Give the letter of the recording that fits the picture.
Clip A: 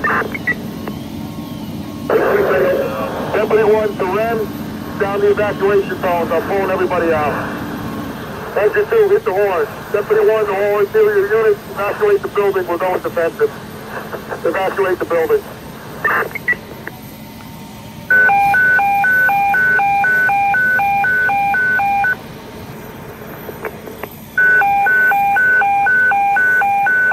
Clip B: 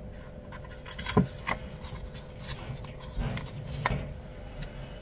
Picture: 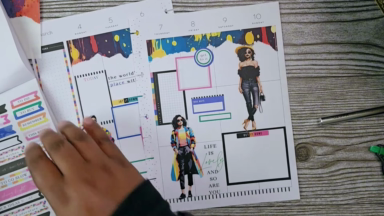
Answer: B